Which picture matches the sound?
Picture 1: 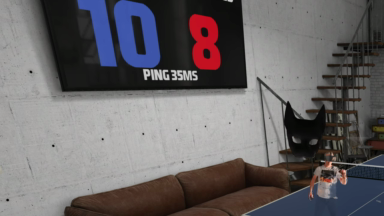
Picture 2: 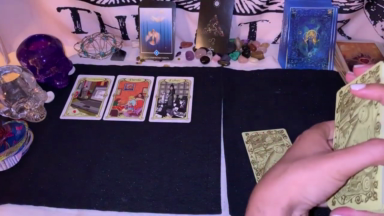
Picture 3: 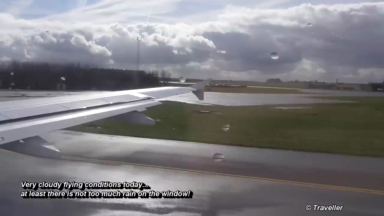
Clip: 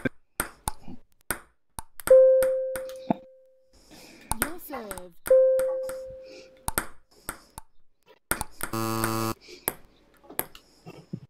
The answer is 1